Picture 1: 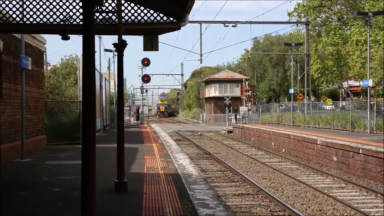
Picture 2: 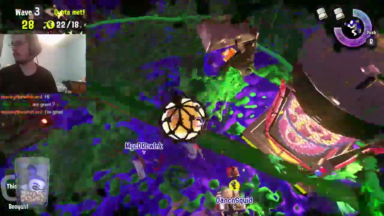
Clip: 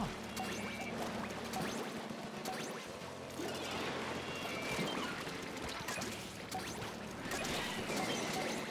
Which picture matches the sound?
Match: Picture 2